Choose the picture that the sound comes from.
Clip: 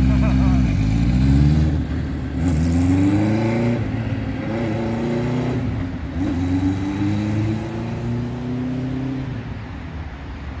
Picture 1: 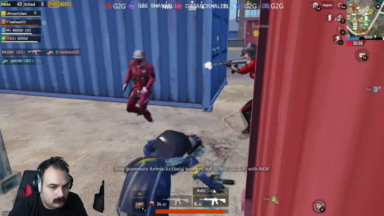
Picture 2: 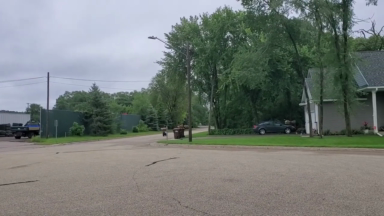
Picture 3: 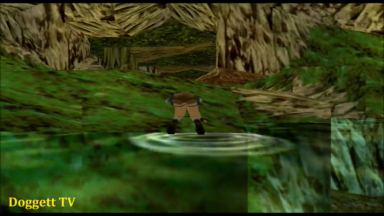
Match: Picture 2